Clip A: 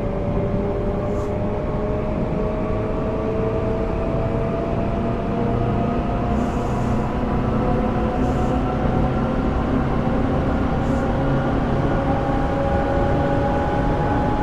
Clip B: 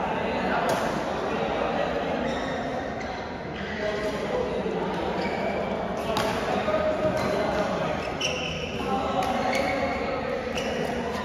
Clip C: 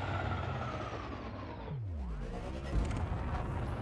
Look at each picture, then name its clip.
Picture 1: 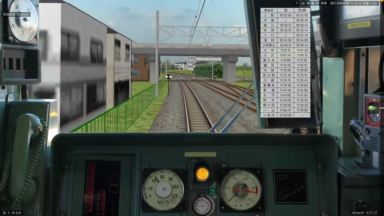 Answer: A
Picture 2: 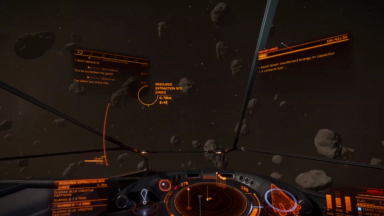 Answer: C